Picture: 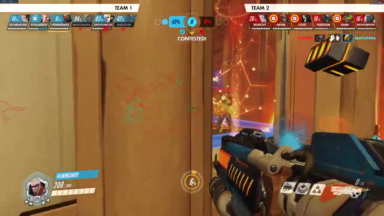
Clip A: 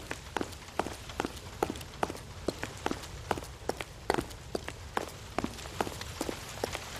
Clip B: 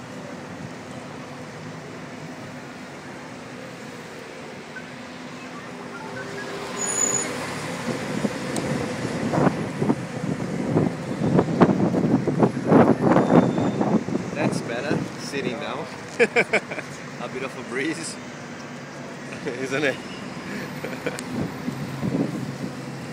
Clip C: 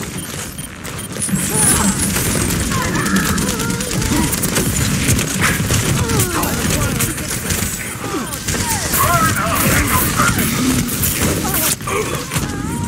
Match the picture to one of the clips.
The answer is C